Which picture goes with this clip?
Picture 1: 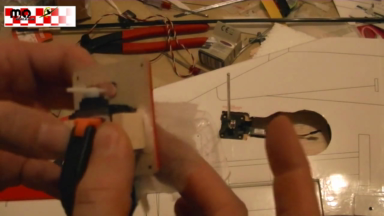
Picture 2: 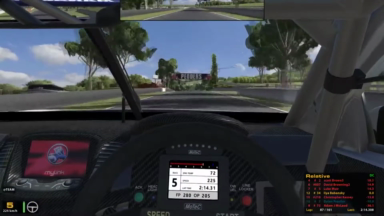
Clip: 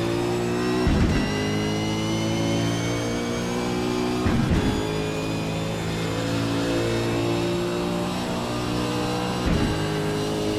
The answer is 2